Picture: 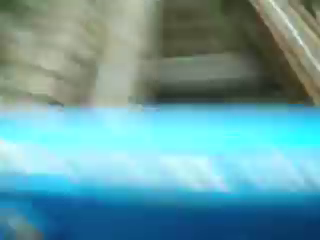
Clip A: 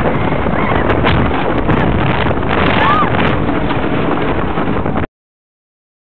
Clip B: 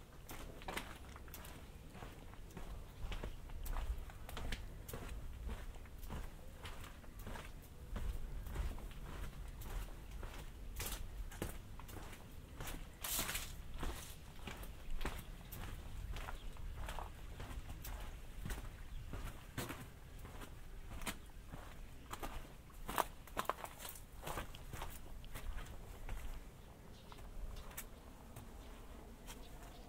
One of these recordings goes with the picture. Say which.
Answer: A